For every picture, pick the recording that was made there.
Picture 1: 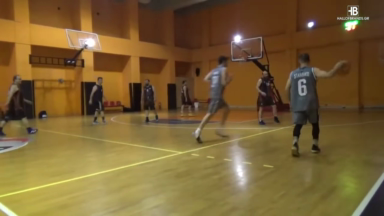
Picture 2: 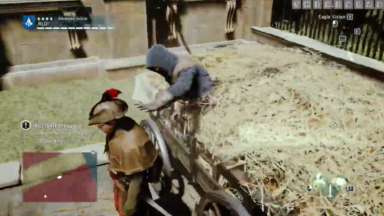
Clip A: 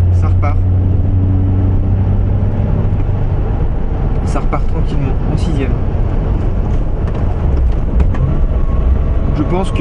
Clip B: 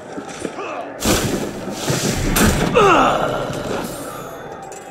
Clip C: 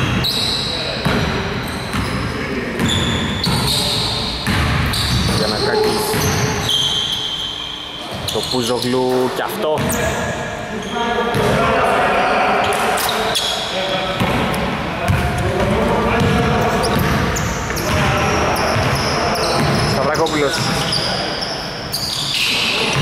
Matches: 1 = C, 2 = B